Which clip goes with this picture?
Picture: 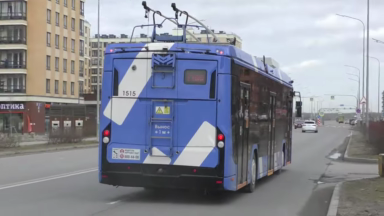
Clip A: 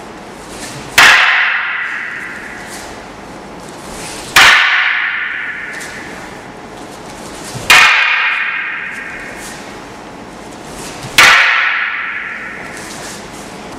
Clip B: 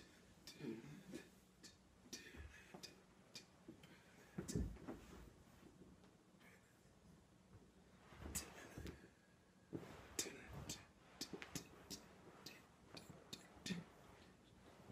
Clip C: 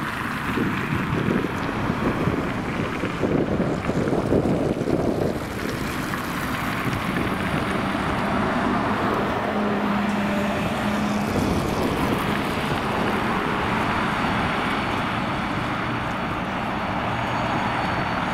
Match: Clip C